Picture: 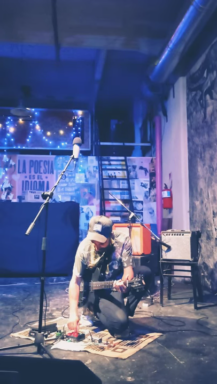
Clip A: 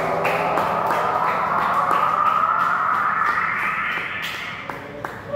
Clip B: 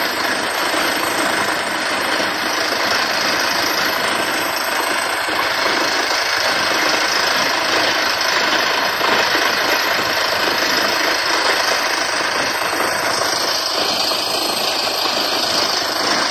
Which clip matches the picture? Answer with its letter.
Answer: A